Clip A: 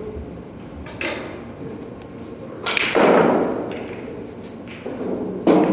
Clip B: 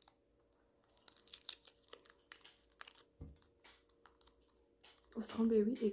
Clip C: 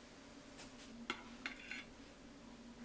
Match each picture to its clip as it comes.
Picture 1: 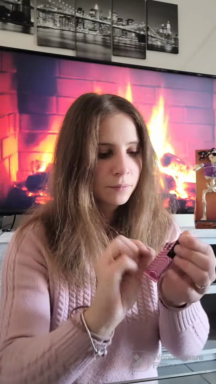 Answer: B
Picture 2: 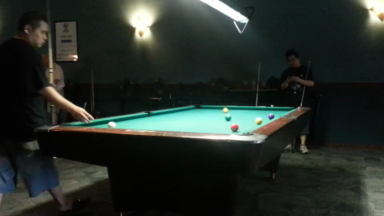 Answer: A